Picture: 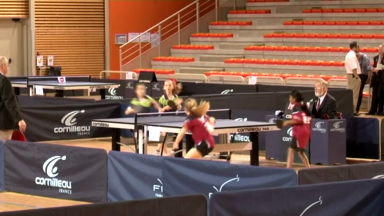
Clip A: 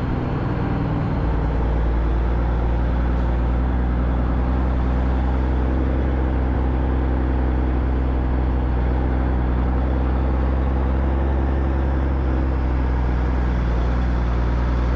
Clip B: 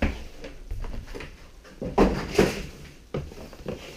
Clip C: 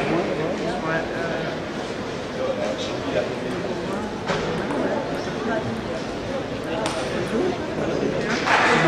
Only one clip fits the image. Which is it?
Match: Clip C